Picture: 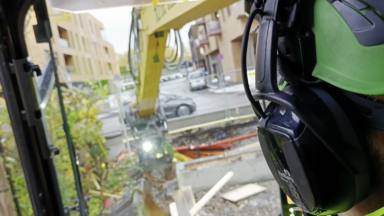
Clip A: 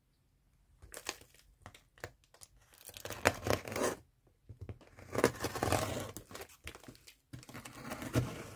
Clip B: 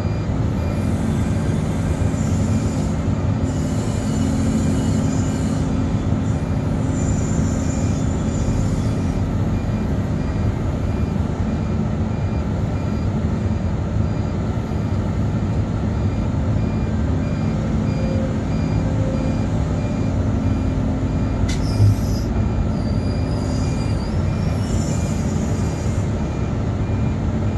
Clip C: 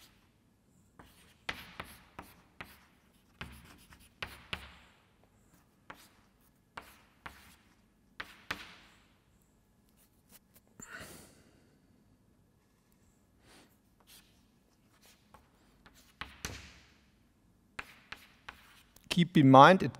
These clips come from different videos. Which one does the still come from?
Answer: B